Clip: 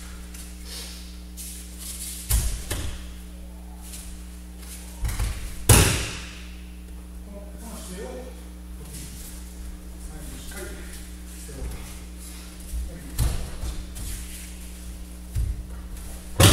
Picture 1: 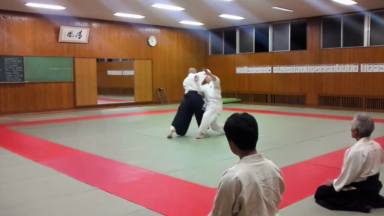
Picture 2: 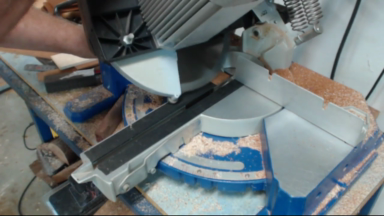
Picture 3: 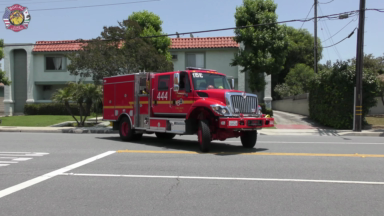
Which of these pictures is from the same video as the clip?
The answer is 1